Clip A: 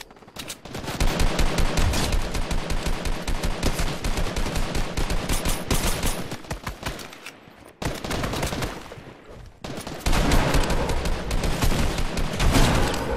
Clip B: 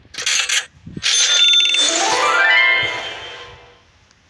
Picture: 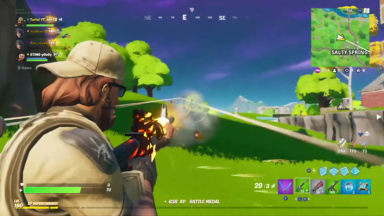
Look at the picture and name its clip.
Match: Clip A